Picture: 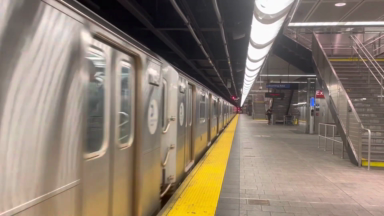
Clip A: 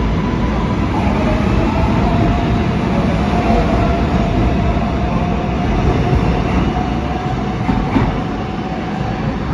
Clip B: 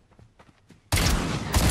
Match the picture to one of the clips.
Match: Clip A